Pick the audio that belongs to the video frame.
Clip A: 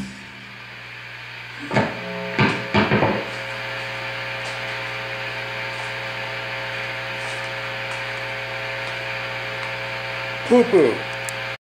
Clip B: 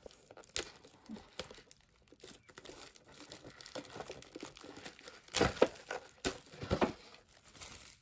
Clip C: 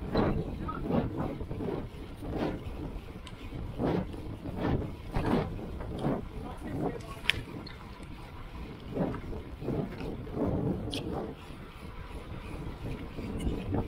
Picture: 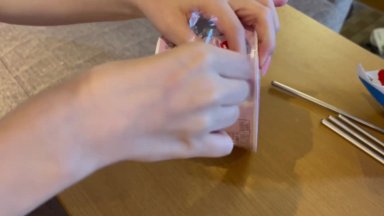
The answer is B